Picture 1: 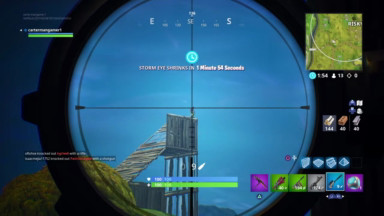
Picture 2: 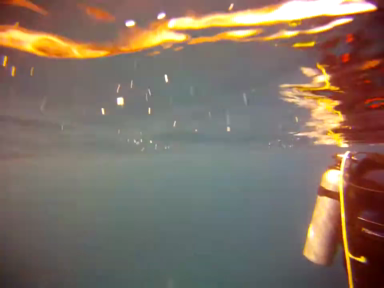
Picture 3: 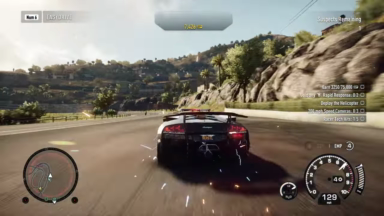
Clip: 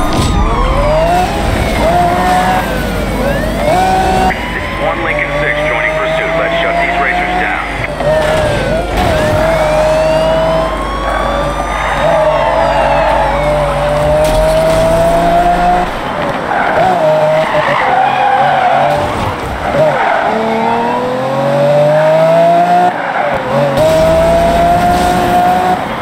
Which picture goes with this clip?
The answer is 3